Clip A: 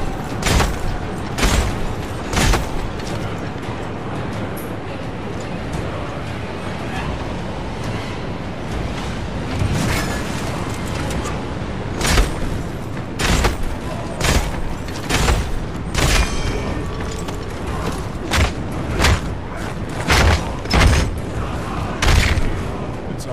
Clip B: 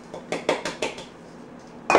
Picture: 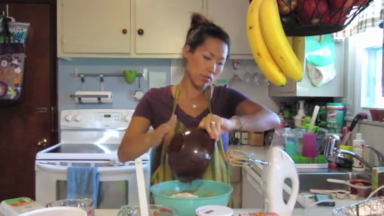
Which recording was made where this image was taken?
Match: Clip B